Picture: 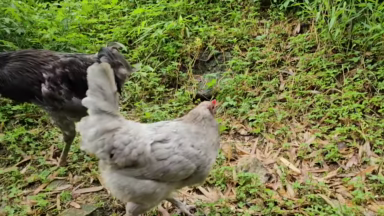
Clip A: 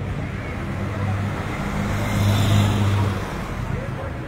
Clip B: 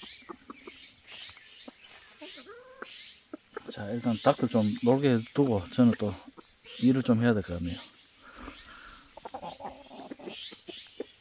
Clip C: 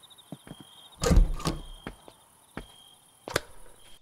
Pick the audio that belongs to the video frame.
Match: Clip B